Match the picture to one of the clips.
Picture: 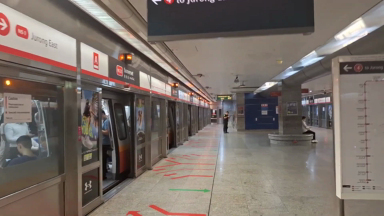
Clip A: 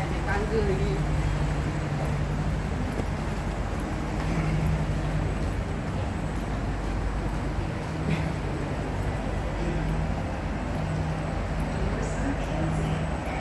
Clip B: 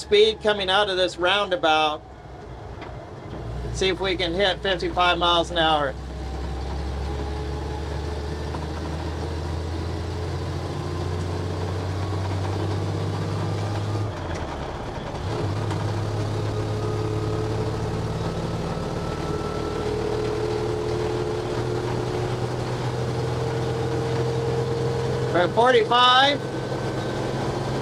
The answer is A